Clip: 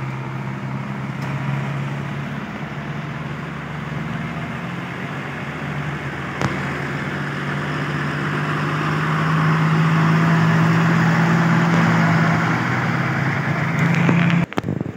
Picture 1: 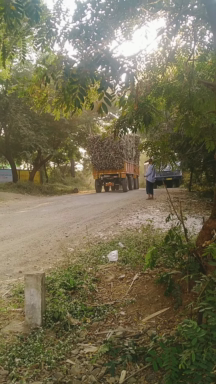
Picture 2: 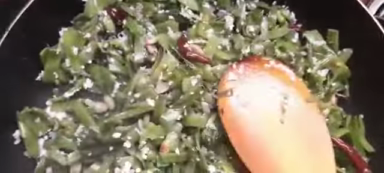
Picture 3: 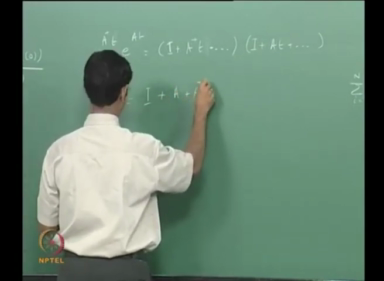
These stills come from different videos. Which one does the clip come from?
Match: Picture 1